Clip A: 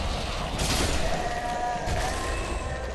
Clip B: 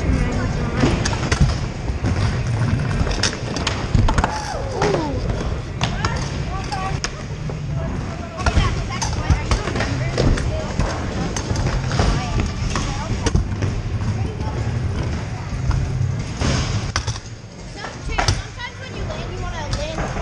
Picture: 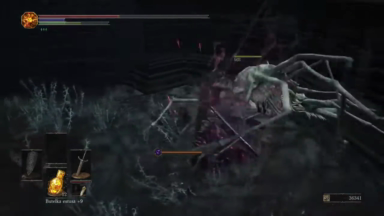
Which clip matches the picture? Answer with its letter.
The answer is A